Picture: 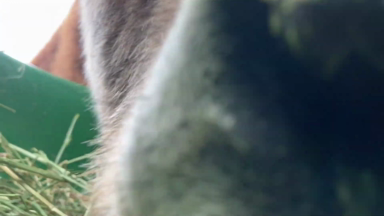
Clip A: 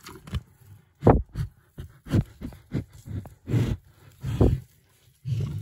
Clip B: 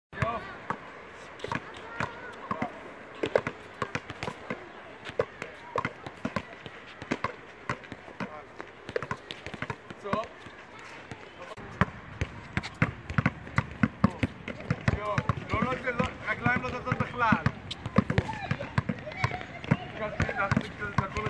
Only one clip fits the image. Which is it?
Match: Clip A